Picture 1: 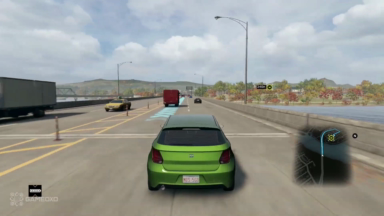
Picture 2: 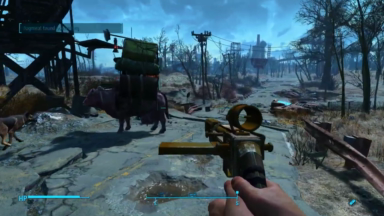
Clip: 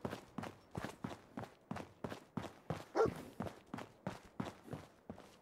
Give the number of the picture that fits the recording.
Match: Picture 2